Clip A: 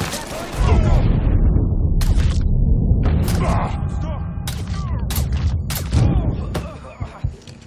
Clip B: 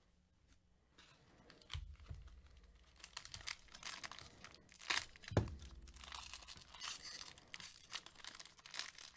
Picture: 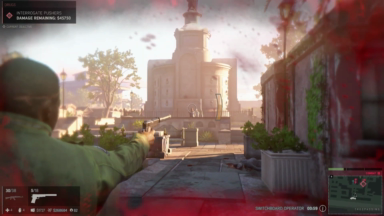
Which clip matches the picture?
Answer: A